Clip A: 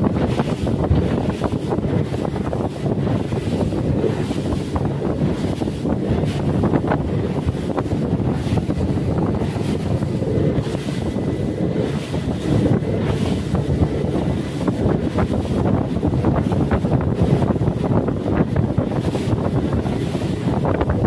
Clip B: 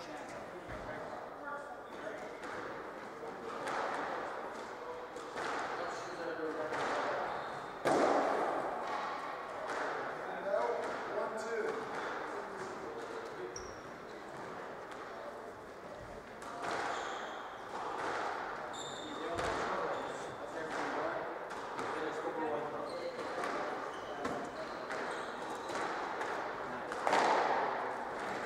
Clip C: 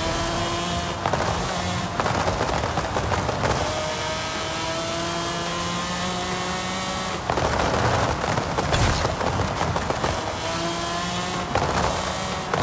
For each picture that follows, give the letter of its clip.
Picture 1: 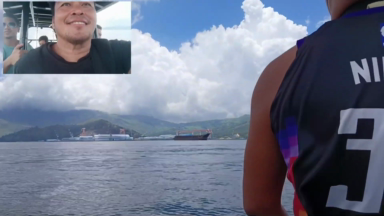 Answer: A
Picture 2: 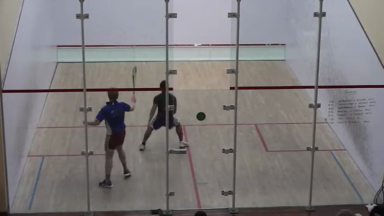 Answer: B